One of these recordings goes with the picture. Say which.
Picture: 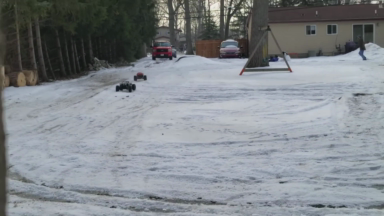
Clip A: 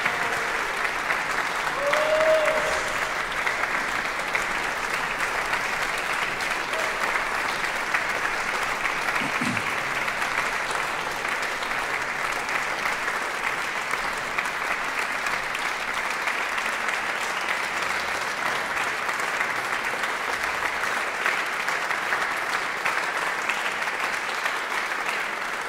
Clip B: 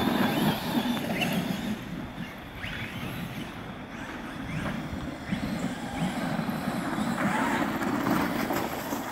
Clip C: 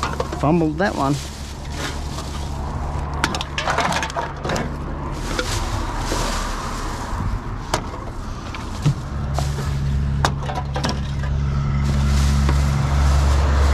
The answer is B